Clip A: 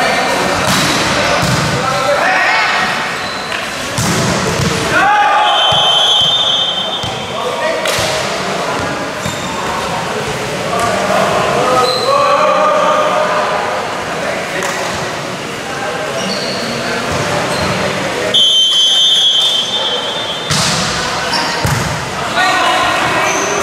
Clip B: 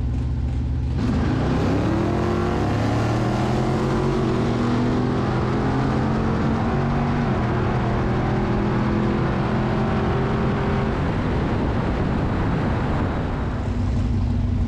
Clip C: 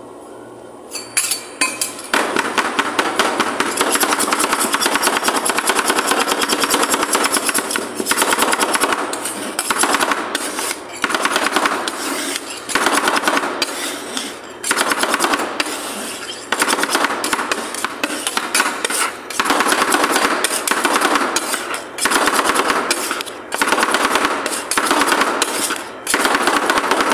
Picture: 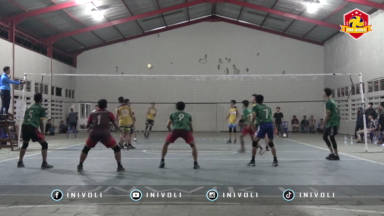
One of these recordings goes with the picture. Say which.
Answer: A